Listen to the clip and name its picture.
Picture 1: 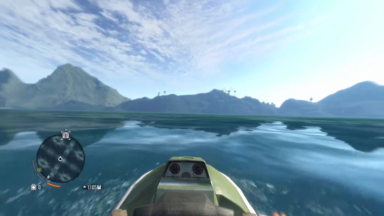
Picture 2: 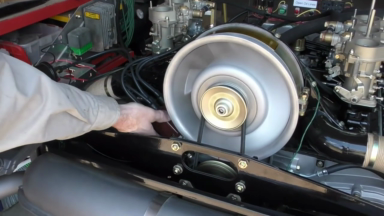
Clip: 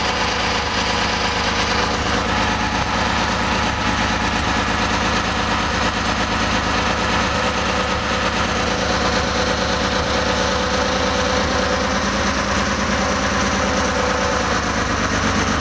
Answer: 2